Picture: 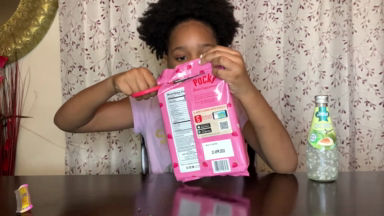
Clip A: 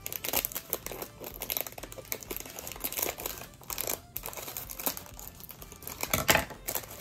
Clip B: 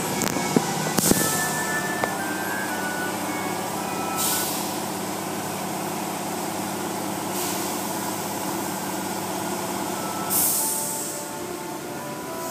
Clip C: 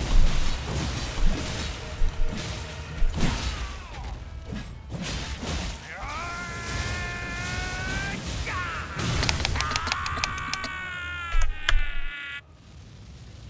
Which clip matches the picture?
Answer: A